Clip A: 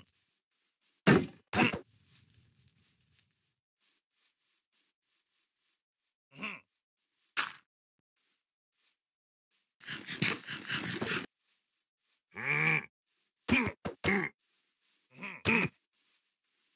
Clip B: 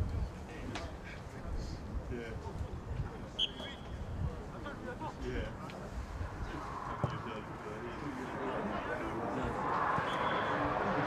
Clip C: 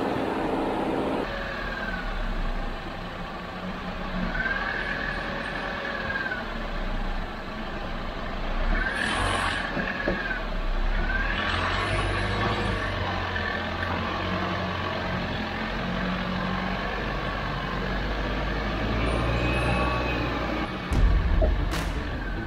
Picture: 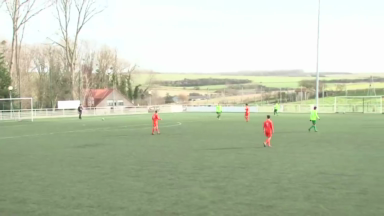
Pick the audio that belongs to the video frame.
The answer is B